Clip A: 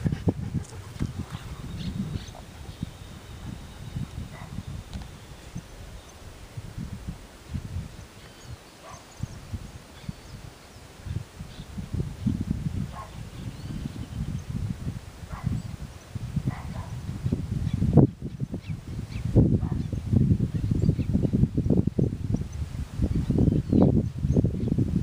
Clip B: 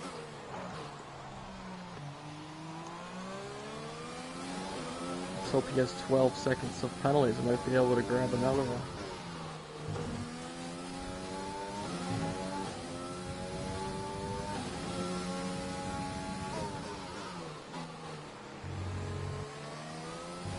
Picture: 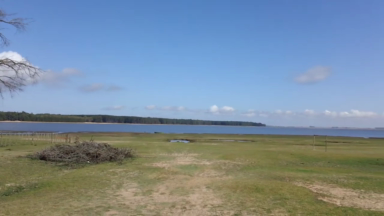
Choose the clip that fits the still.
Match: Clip A